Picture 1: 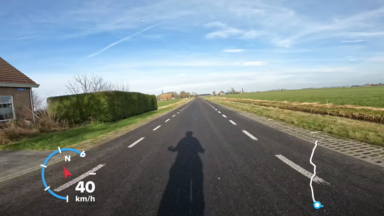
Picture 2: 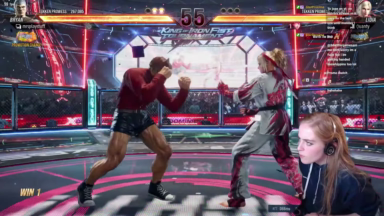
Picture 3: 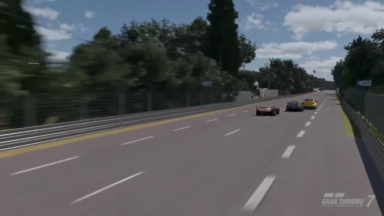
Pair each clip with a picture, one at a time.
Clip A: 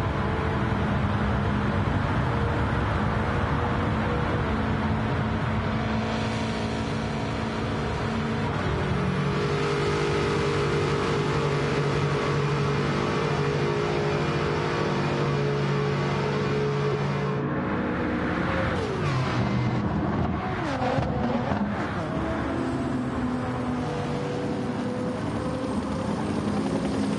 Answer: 3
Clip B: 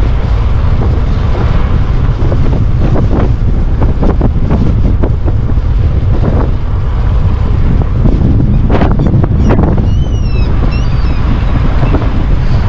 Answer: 1